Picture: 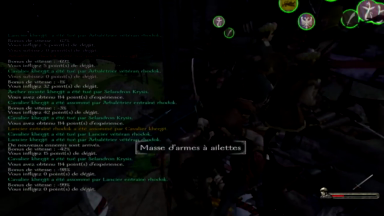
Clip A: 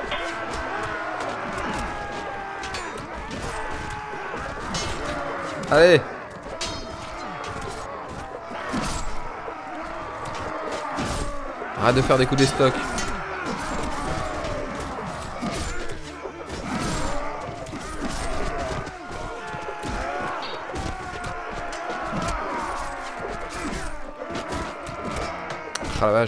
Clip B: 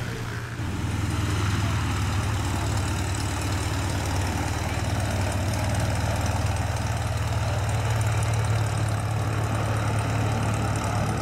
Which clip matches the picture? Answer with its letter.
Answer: A